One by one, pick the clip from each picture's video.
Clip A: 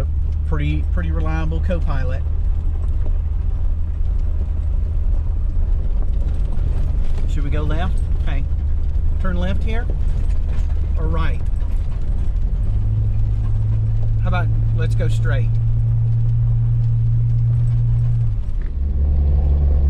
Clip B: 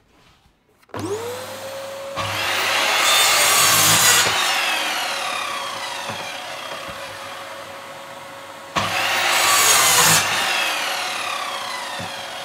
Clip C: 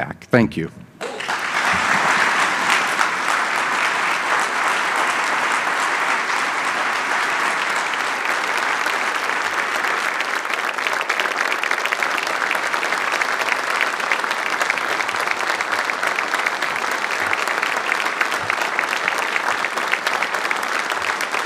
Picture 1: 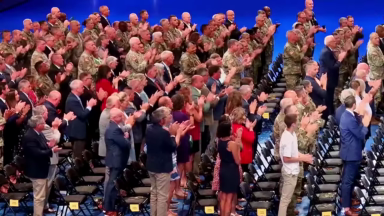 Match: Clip C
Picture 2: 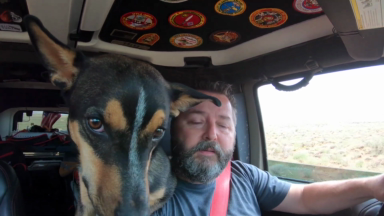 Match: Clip A